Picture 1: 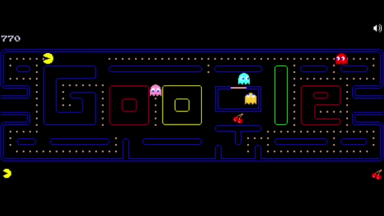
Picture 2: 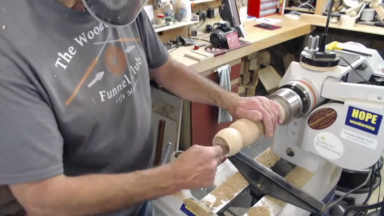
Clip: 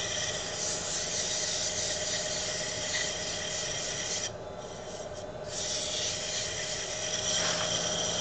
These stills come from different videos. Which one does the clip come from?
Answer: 2